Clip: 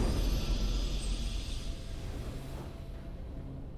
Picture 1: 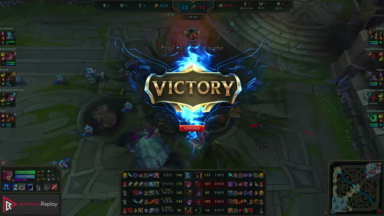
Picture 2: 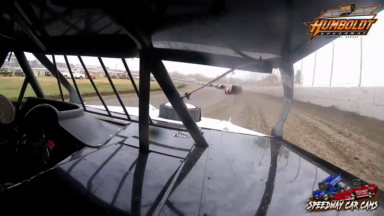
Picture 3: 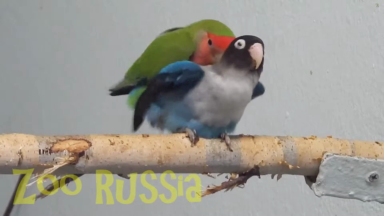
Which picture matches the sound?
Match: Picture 1